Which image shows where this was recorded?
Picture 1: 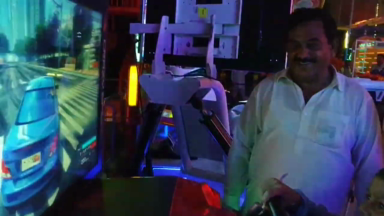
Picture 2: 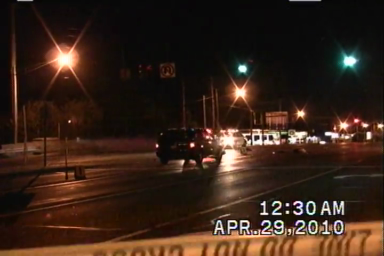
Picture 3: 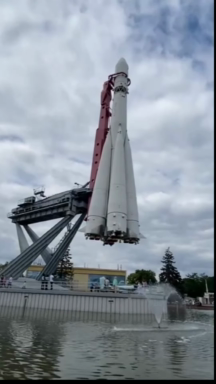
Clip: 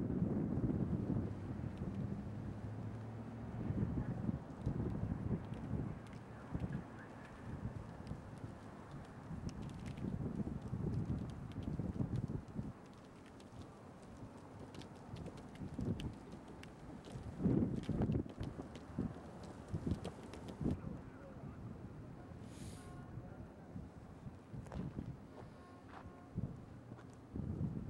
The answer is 2